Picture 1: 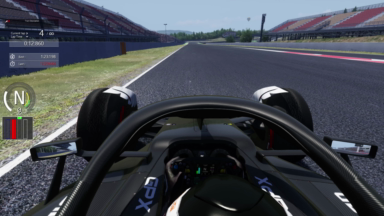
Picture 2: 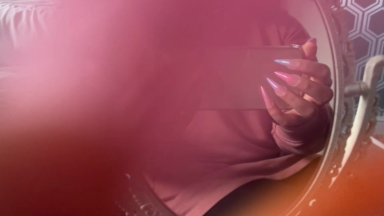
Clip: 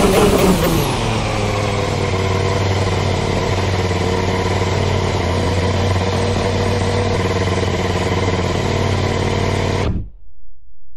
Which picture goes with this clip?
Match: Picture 1